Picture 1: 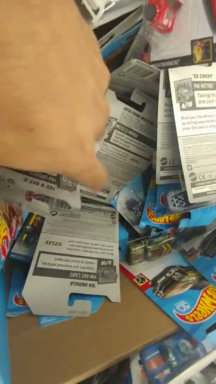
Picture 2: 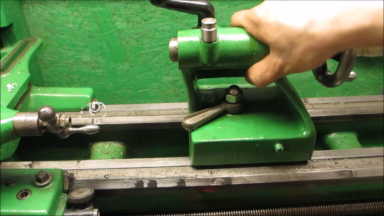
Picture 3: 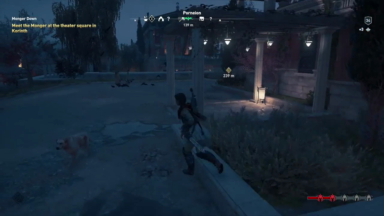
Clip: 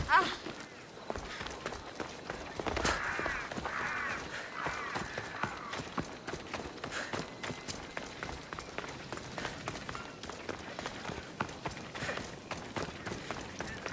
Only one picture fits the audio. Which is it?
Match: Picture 3